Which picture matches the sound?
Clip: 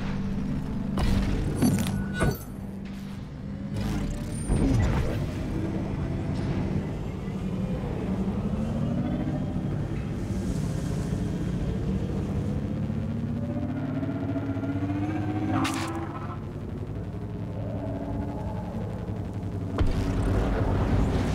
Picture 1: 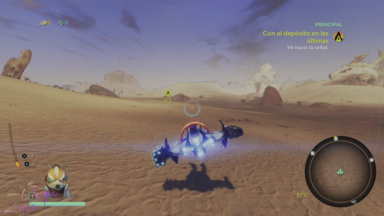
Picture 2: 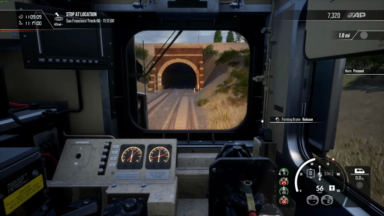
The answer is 1